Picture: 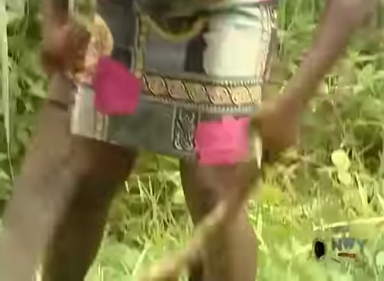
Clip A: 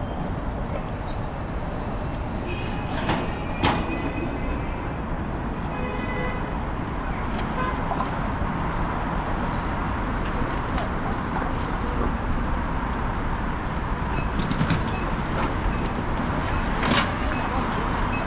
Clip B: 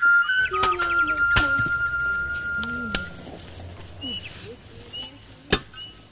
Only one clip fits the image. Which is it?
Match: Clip B